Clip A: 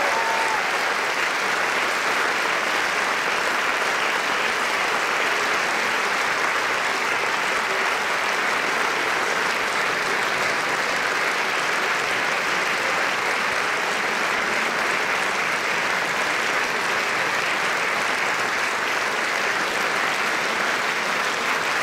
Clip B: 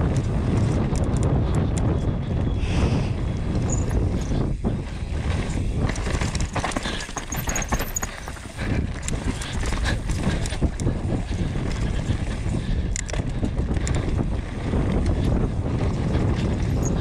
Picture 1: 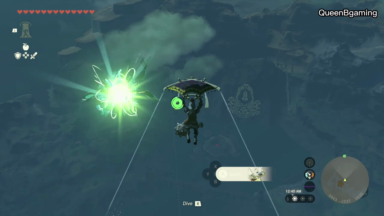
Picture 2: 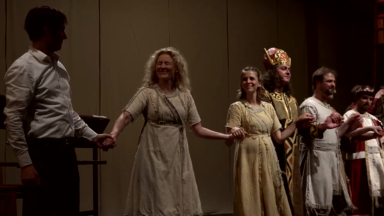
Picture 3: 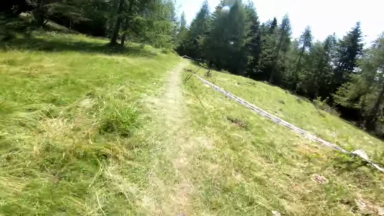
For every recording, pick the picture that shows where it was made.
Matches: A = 2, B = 3